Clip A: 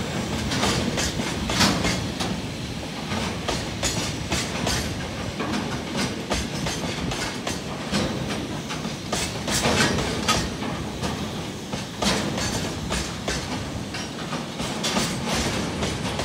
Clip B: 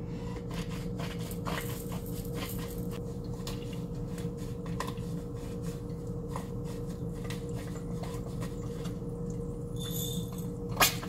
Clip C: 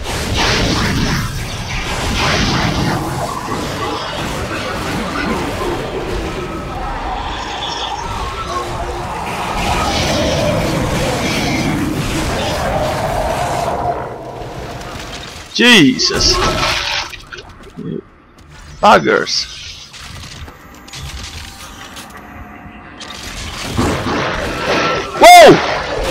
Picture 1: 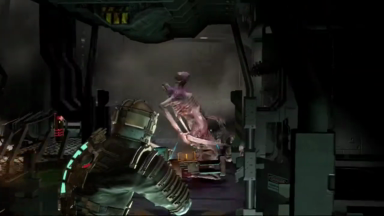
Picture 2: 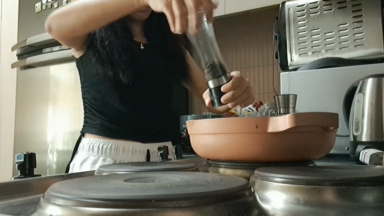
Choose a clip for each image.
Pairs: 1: C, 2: B